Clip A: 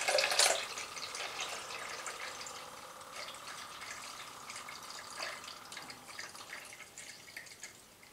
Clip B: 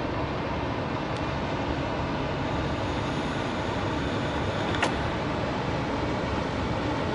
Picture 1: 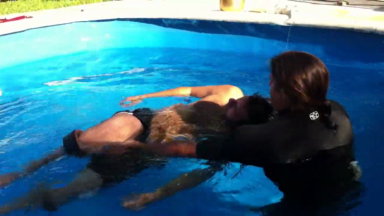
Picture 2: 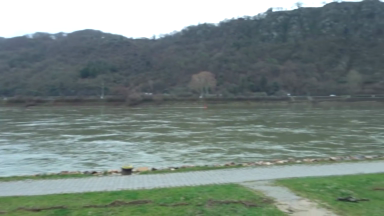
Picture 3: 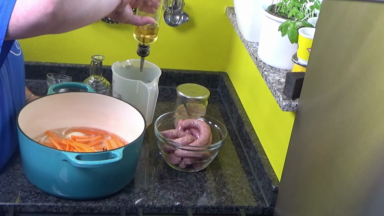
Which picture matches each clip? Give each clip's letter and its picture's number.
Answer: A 3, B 2